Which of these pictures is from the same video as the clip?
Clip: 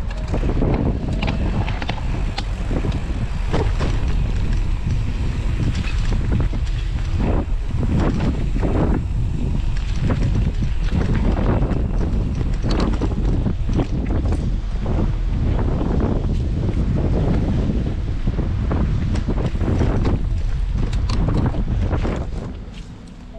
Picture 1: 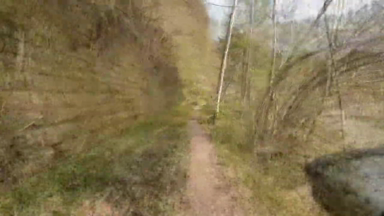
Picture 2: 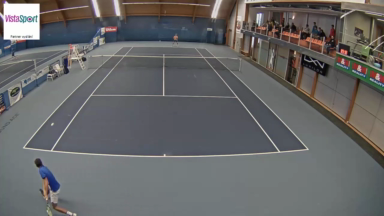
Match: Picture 1